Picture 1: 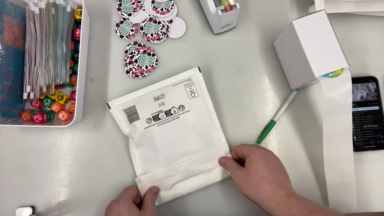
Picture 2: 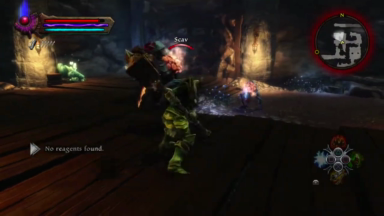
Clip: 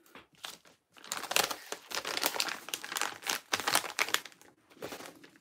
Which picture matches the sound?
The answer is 1